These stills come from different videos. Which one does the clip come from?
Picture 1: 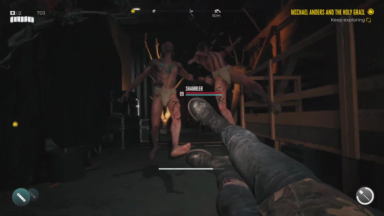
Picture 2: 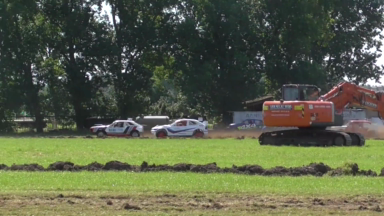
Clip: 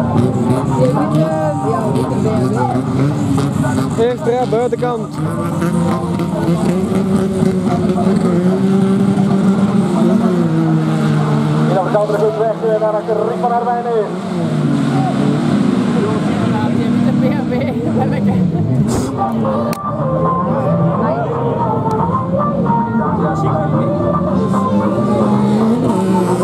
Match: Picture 2